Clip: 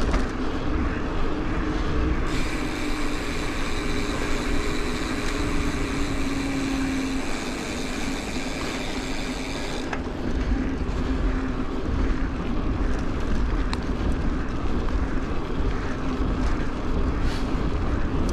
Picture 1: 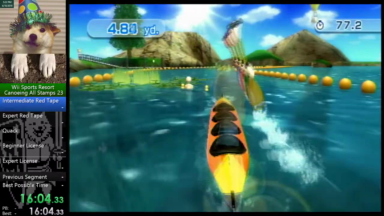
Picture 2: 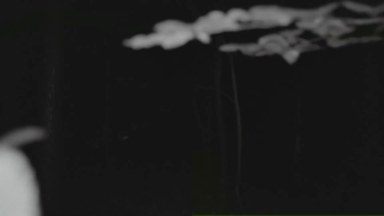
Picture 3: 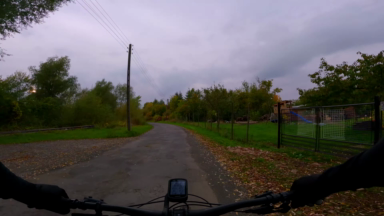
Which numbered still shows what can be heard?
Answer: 3